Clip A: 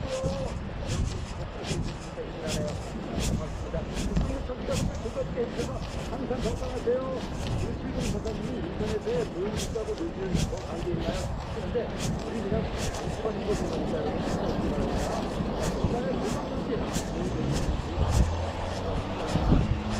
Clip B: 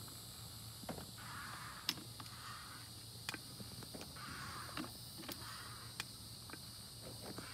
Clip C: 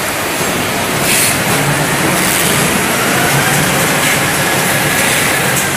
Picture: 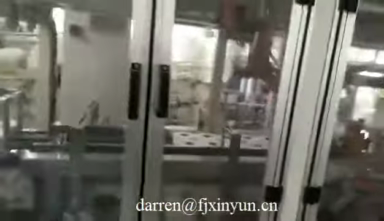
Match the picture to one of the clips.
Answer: C